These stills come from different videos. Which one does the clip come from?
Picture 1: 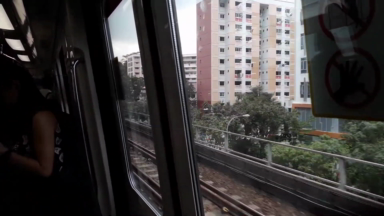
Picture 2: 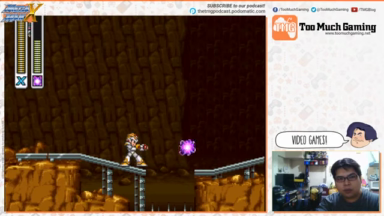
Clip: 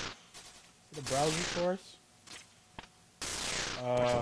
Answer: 2